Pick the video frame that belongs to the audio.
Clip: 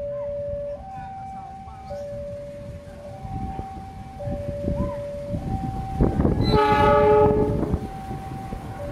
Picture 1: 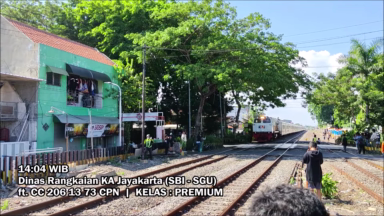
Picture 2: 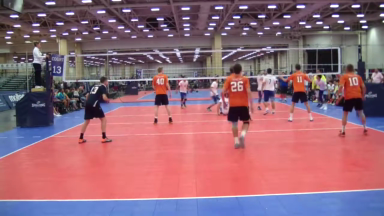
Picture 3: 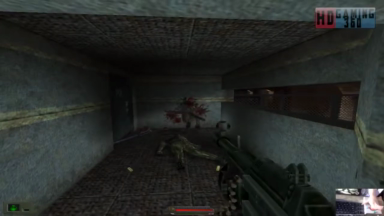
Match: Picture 1